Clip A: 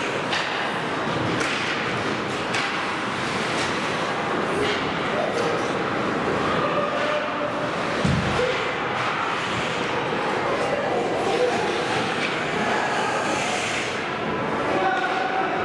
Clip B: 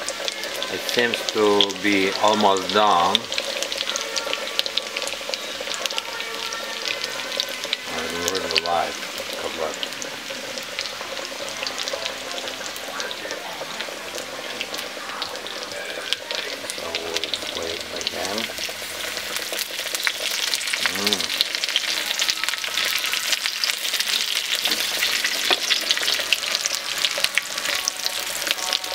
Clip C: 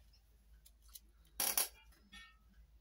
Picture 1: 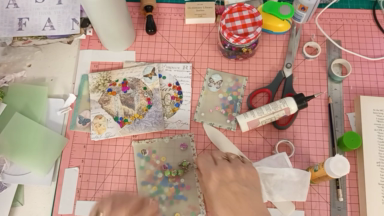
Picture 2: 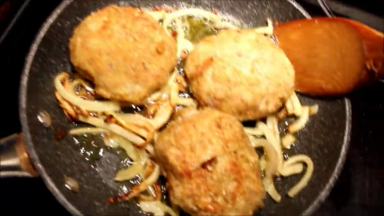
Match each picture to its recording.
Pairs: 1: C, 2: B